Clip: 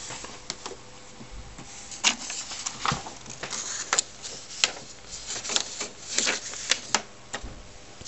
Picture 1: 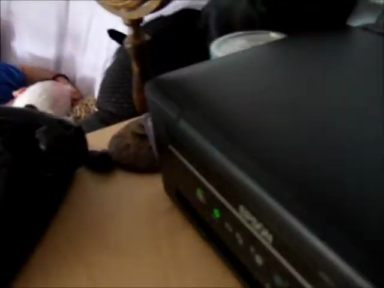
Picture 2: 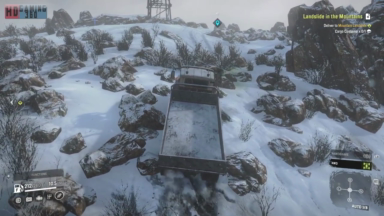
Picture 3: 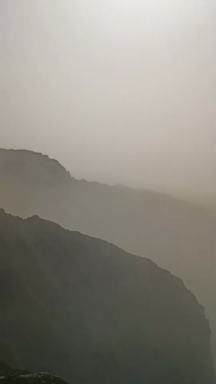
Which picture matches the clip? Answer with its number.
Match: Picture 1